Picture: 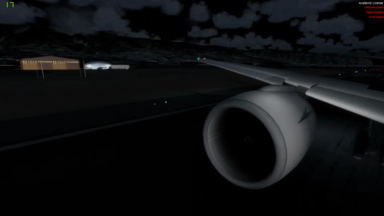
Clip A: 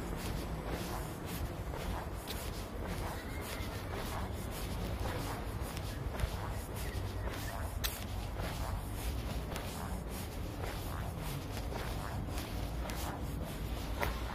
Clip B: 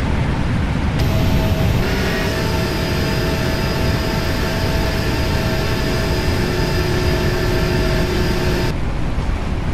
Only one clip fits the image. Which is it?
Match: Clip B